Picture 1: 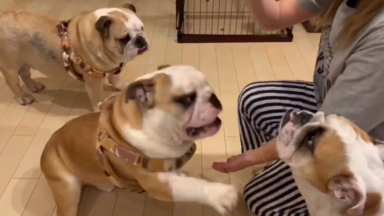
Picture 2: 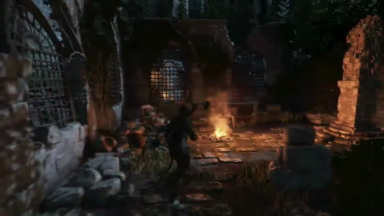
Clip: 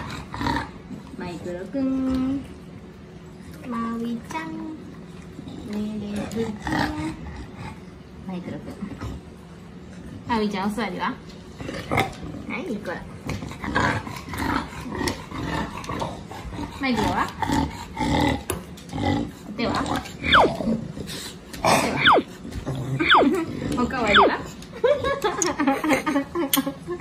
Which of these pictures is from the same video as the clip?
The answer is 1